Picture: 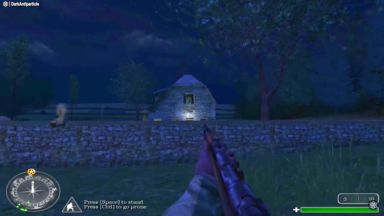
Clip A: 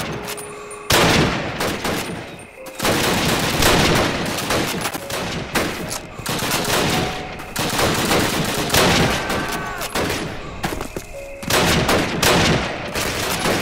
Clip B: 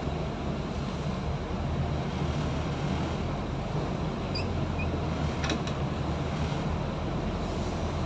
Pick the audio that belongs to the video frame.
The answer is A